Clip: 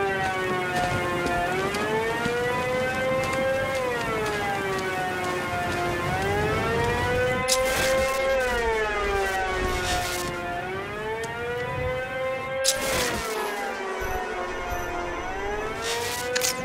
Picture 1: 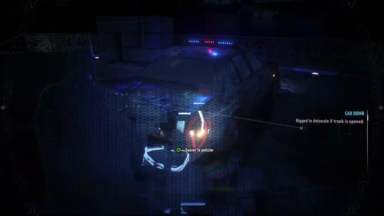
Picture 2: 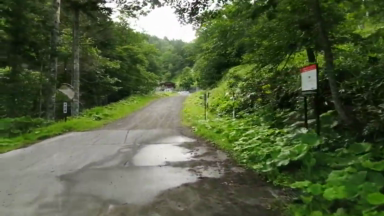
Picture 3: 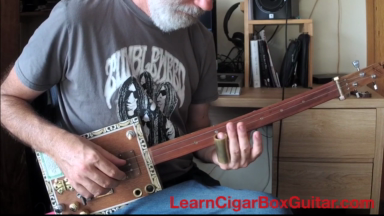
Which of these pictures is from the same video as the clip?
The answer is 1